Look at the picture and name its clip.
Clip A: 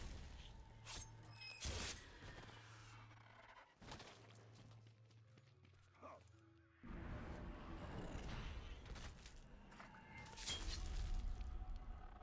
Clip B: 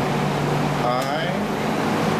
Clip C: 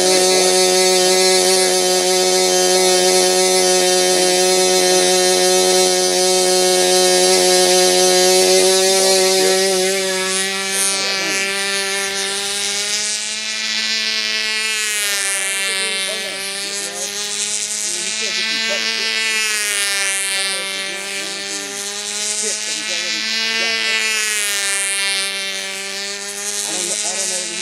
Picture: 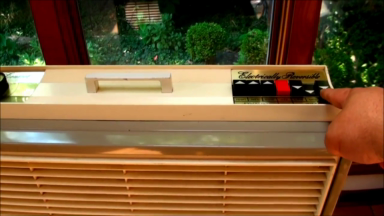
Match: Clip B